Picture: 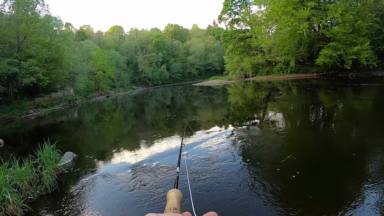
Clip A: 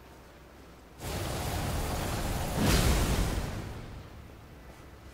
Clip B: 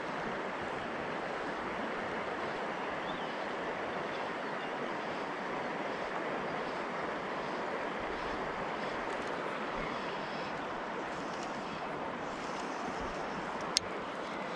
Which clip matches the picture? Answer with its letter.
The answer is B